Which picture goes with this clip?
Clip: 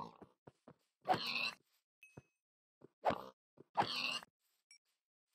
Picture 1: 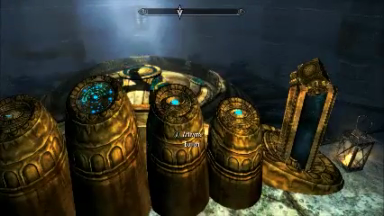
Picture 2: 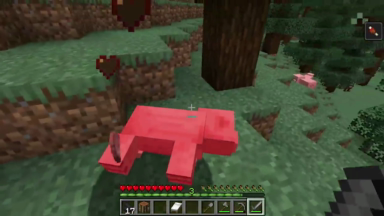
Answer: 2